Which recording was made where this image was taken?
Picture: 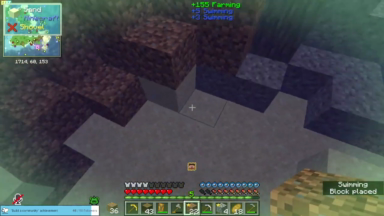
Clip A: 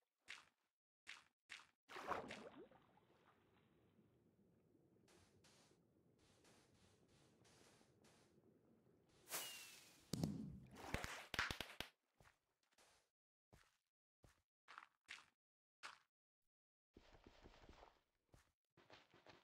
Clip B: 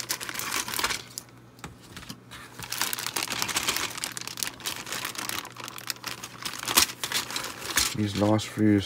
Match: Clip A